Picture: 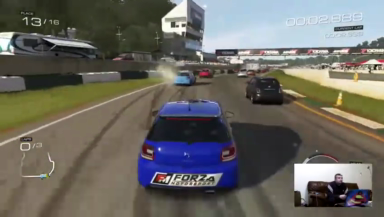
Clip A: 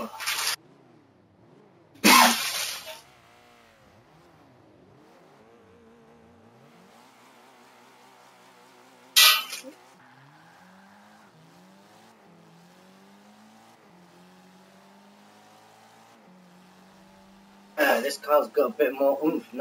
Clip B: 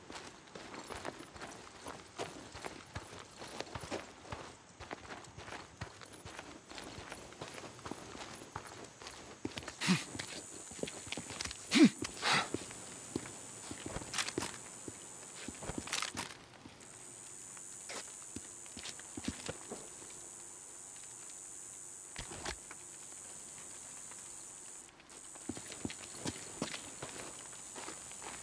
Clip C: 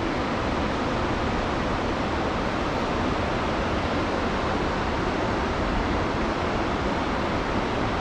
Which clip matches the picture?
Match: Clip A